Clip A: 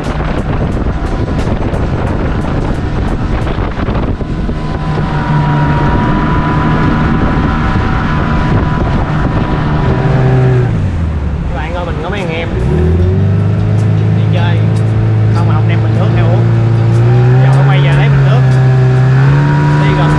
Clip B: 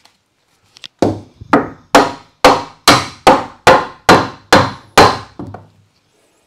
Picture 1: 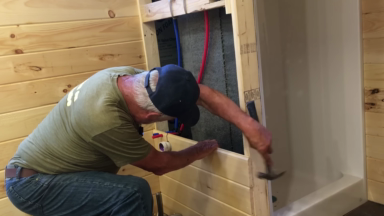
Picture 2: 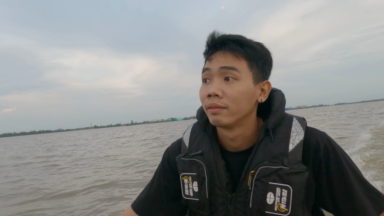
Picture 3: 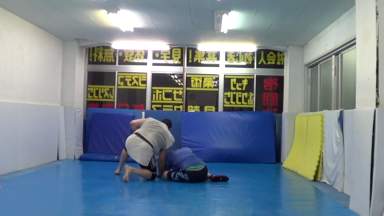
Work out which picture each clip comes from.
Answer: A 2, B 1